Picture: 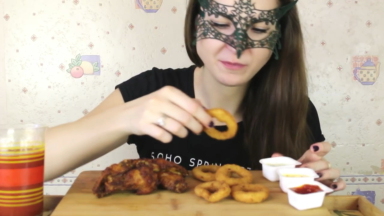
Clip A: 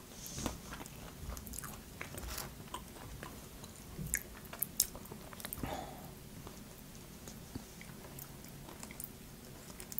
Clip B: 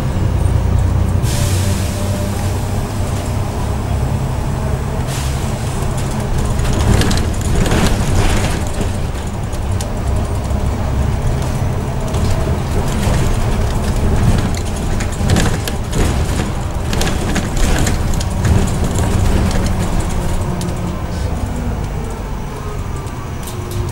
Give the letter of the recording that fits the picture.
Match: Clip A